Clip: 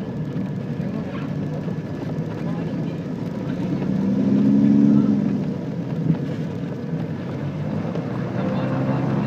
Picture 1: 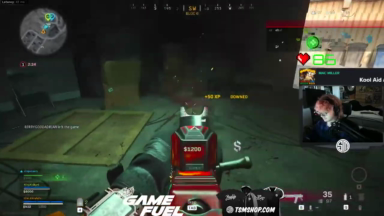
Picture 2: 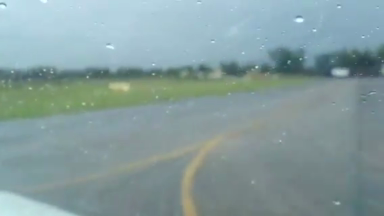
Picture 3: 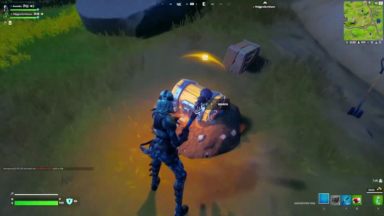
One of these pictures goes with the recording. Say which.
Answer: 2